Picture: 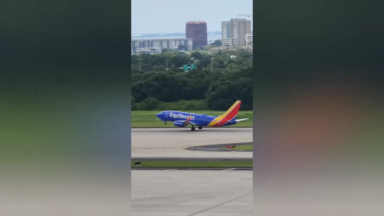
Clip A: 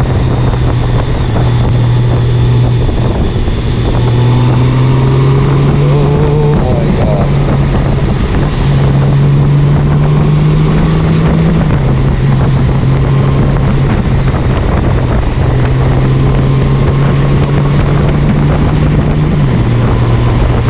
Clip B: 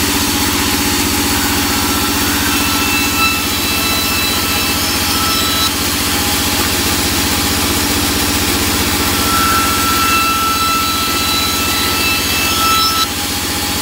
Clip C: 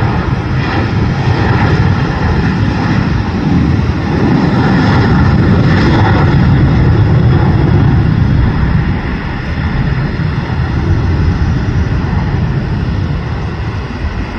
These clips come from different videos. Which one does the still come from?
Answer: C